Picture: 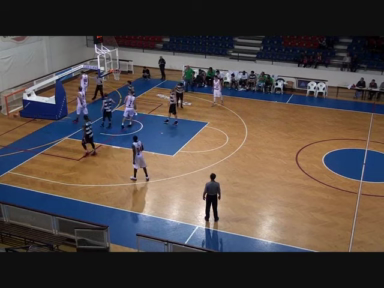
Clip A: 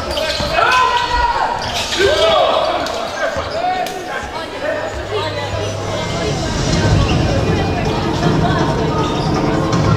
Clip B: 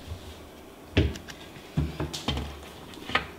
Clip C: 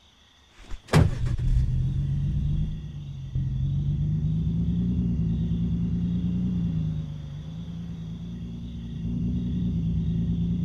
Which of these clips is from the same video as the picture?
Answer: A